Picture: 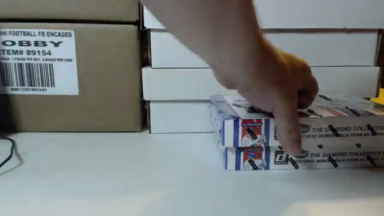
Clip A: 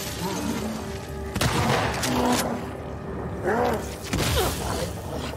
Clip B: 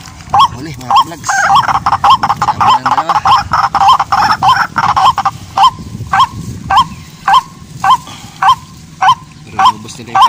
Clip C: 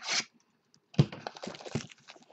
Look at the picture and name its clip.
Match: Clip C